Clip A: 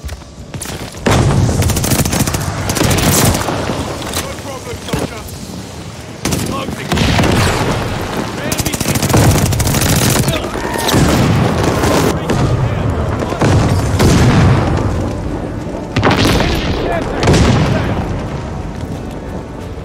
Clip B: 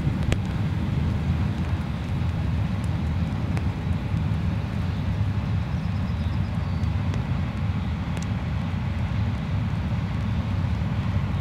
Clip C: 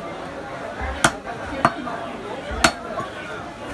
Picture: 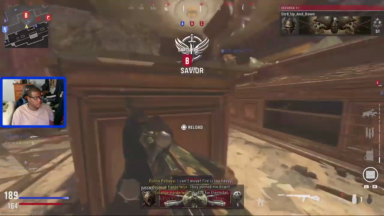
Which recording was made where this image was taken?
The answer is A